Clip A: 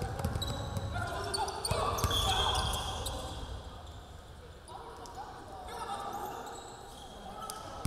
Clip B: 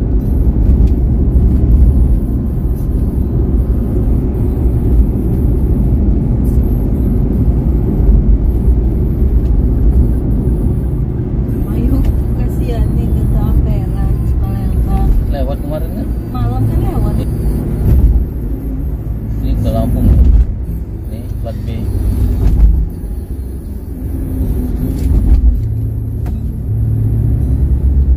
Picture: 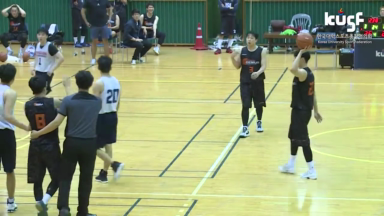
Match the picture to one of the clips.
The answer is A